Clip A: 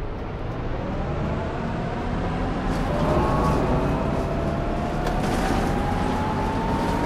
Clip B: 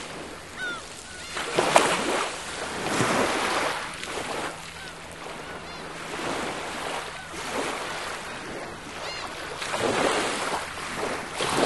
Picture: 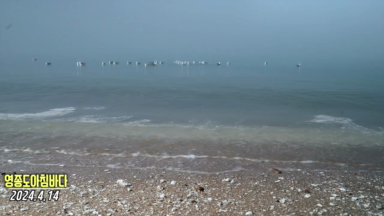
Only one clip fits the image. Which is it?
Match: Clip B